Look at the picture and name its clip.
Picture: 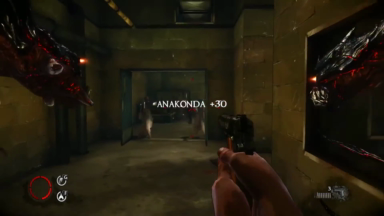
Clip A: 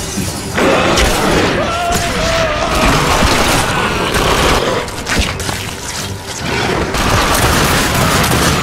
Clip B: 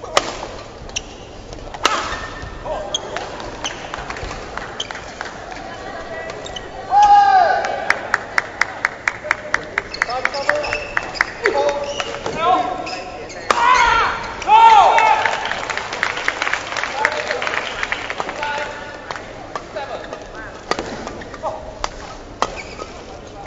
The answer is A